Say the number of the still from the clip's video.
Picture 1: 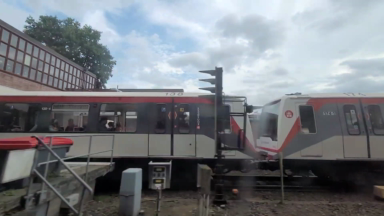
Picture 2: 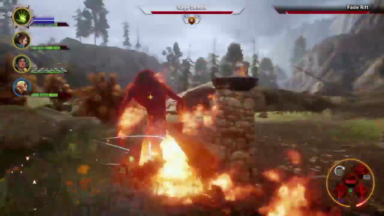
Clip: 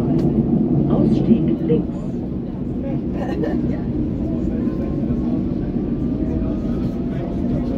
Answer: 1